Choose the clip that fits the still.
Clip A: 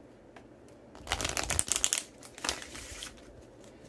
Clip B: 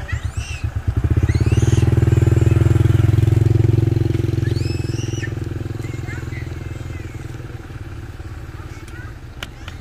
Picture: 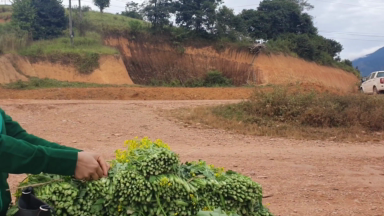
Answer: B